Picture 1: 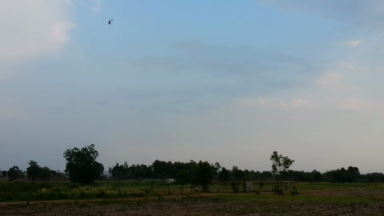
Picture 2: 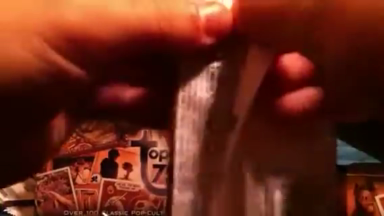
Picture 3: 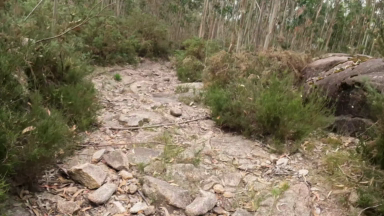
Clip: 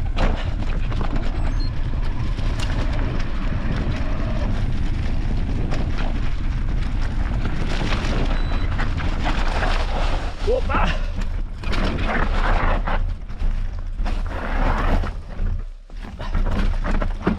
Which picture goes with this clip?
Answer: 3